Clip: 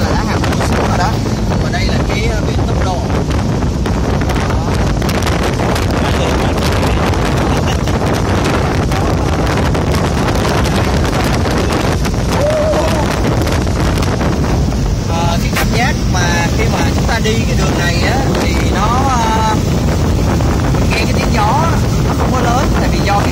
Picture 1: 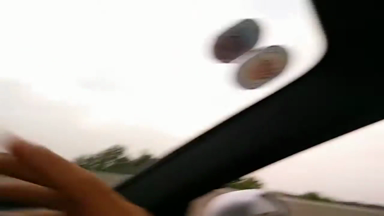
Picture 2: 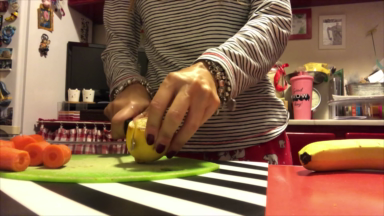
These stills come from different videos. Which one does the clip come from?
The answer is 1